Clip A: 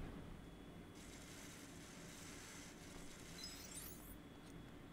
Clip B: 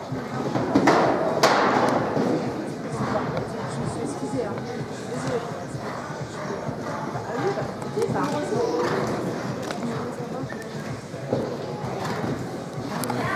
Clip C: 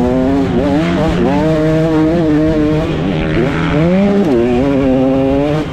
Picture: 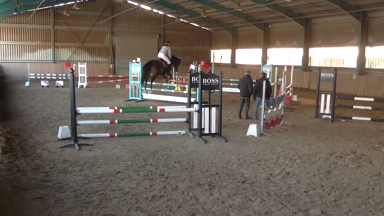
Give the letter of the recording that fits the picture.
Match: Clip B